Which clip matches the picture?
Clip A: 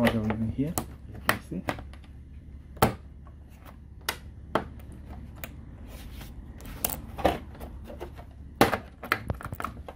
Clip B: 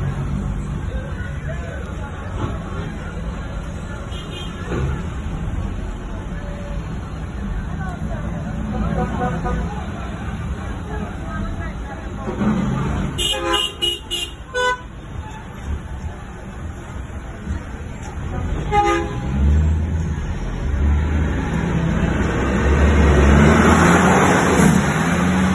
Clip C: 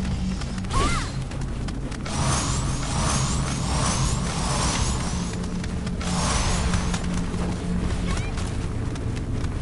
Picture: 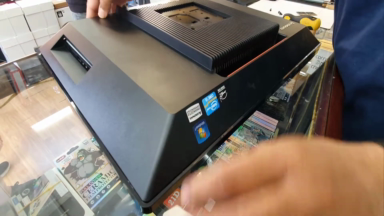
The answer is A